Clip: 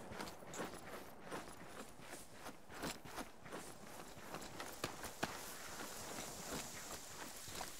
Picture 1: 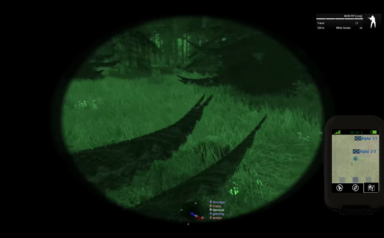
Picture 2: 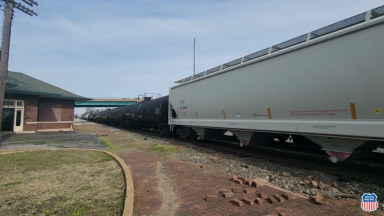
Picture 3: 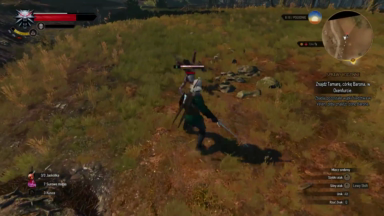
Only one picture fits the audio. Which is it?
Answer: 1